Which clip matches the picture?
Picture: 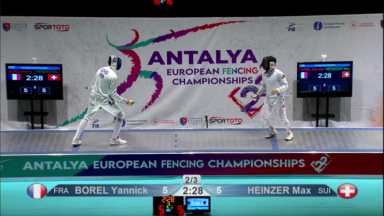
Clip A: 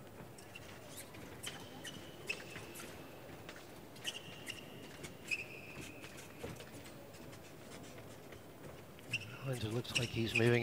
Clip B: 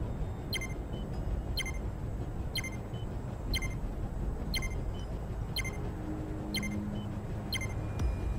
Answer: A